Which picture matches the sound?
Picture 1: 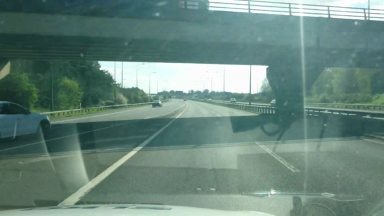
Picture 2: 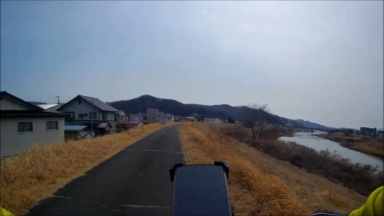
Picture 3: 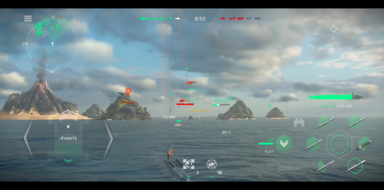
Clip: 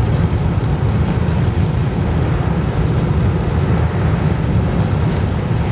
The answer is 1